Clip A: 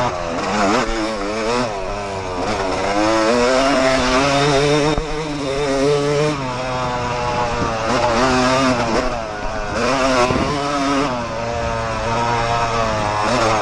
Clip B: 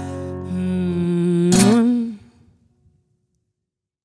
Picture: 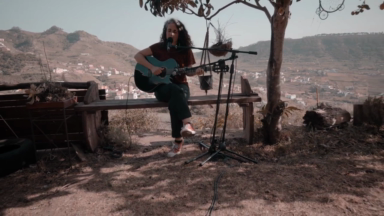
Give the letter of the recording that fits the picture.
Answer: B